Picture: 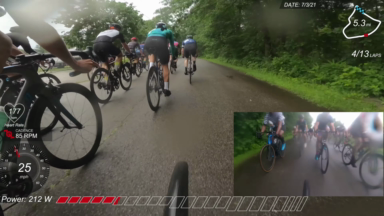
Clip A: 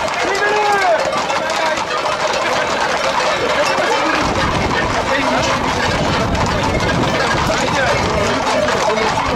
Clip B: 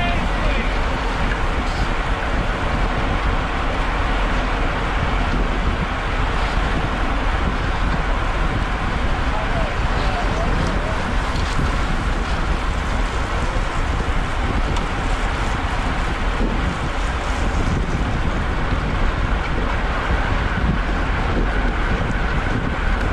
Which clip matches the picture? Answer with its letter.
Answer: B